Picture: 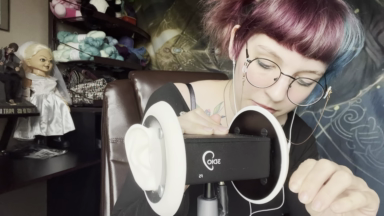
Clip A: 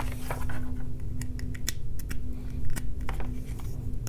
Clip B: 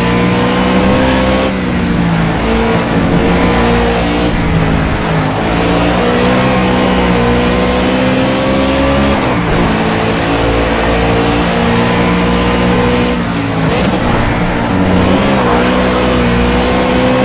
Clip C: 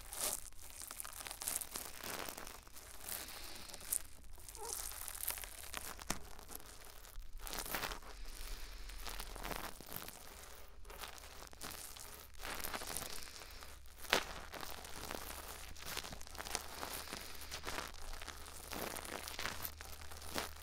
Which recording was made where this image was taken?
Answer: C